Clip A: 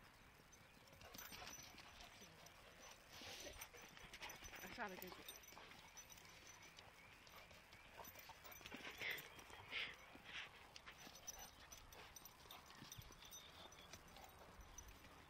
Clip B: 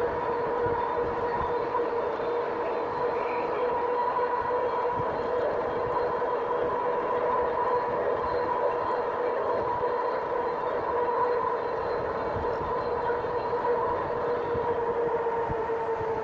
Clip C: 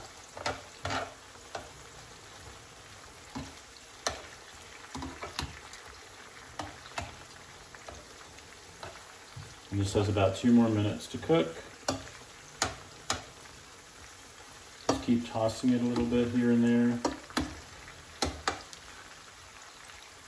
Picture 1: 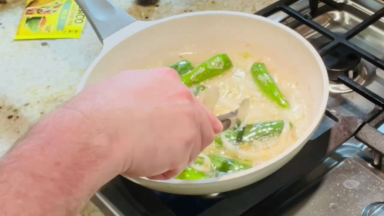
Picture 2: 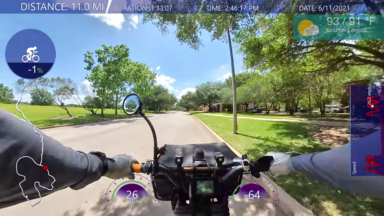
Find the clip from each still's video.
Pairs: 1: C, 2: B